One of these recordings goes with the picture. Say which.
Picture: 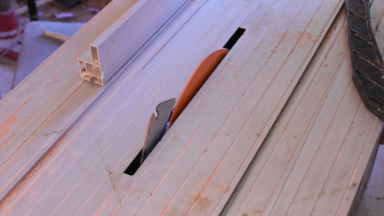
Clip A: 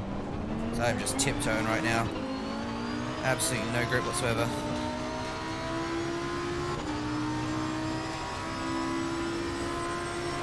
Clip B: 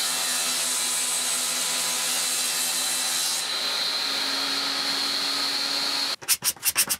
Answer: B